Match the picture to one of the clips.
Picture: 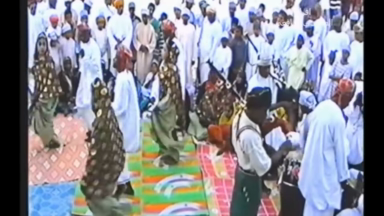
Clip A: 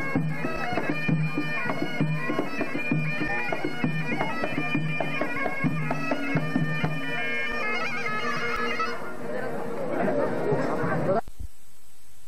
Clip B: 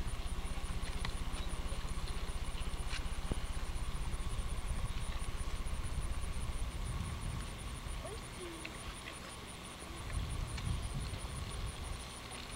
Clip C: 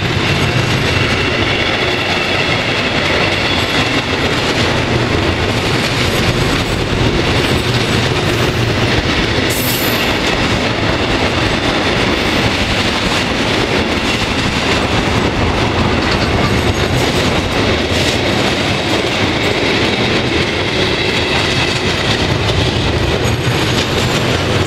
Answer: A